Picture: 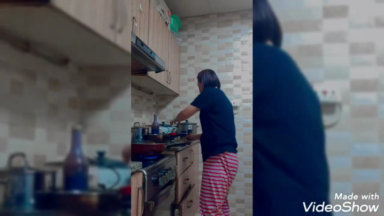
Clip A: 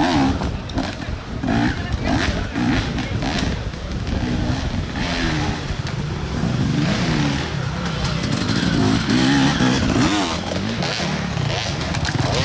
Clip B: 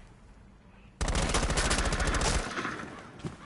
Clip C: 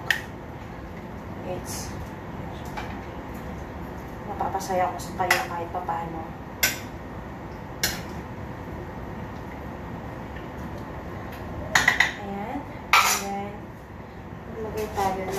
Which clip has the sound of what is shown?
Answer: C